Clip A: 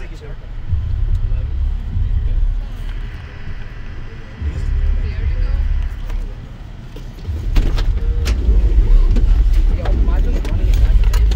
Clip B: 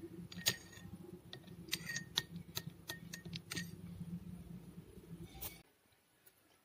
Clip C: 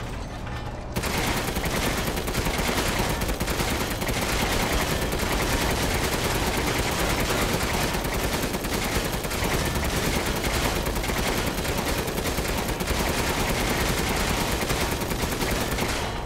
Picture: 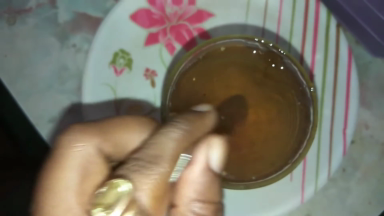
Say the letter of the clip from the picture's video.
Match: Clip B